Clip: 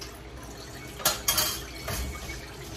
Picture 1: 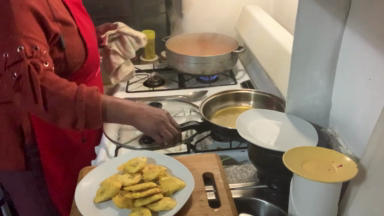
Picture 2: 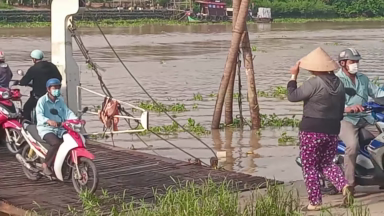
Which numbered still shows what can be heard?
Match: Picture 1